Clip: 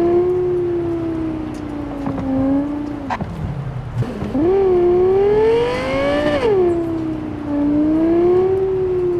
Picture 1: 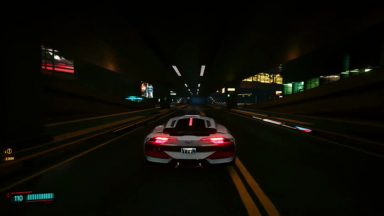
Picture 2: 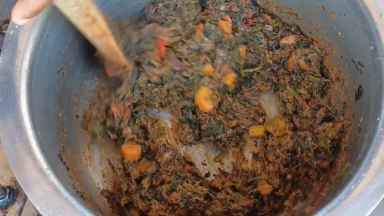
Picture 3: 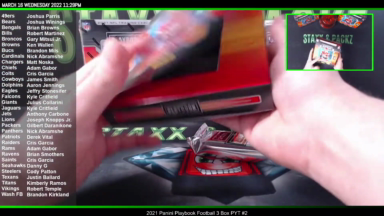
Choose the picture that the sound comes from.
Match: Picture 1